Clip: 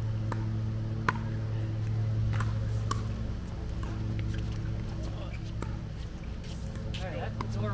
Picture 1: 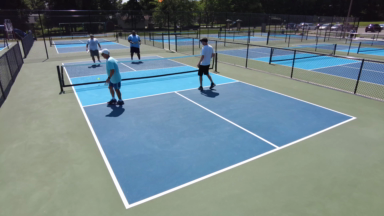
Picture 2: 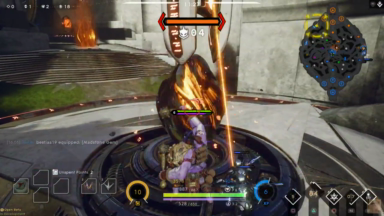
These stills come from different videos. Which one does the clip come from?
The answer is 1